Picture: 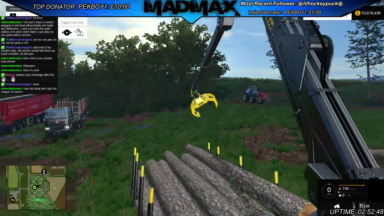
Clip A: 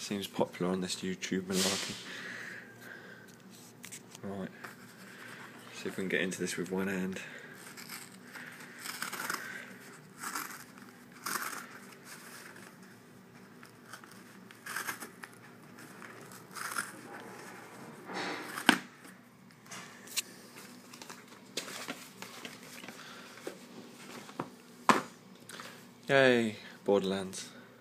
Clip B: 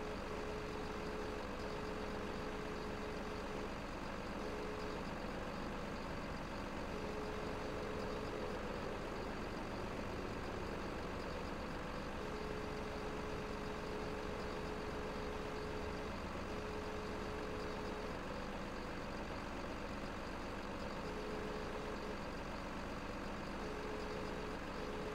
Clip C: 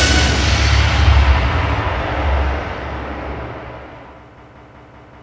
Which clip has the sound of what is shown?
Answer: B